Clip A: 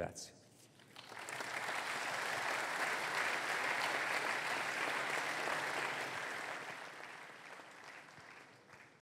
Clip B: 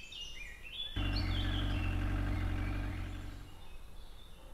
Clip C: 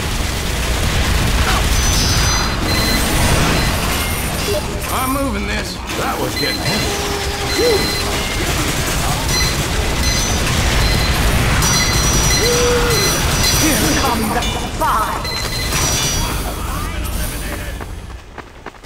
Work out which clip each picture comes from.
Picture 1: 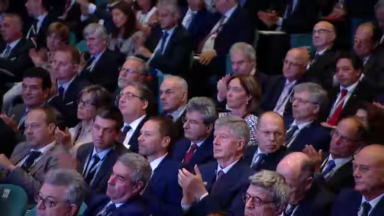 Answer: A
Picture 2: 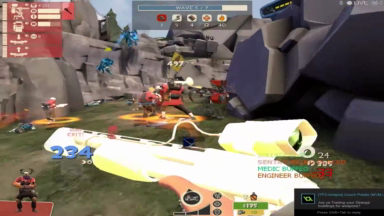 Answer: C